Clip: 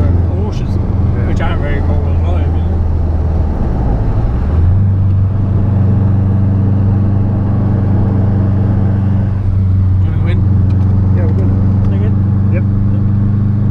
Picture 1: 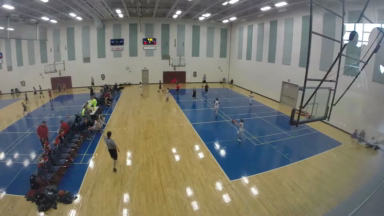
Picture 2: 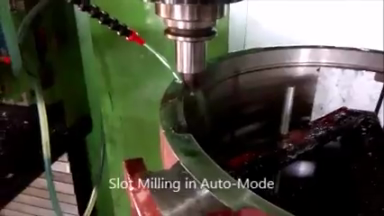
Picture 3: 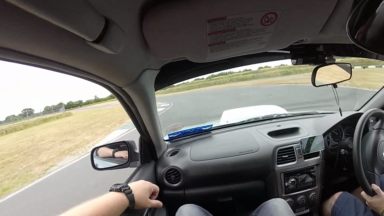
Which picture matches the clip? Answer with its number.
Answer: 3